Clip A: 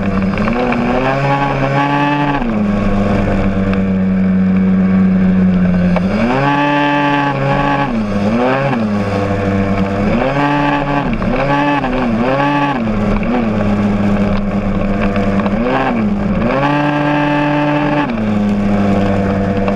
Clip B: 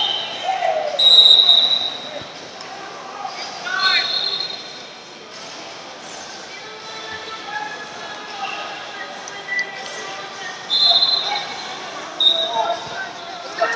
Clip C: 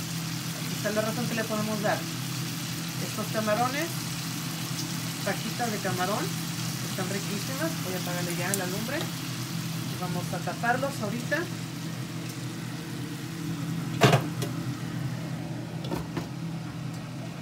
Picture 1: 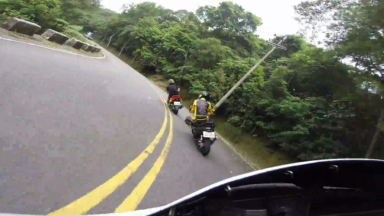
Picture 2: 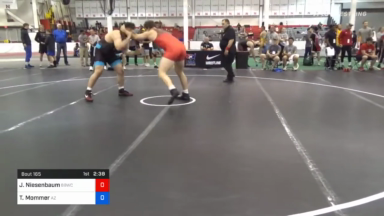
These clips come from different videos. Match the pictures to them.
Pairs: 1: A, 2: B